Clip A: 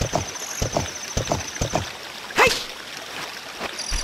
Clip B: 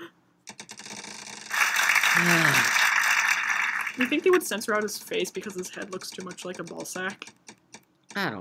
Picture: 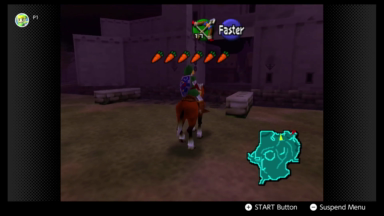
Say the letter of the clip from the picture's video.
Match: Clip A